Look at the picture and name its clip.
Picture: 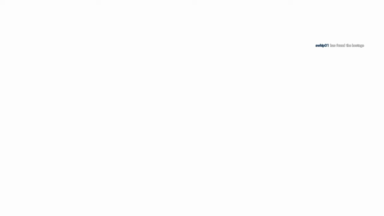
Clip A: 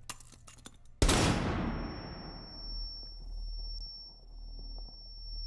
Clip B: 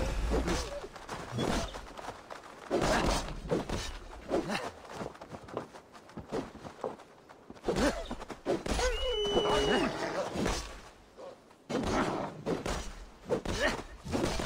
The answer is A